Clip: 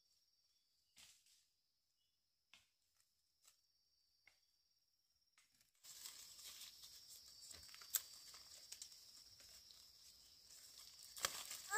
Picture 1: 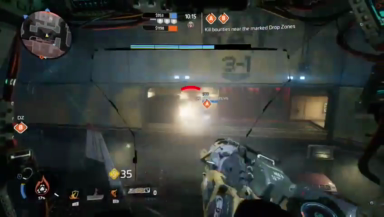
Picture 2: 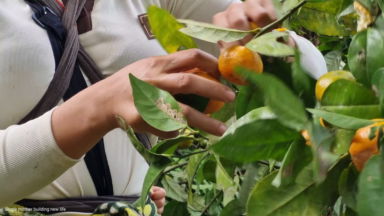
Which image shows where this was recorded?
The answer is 2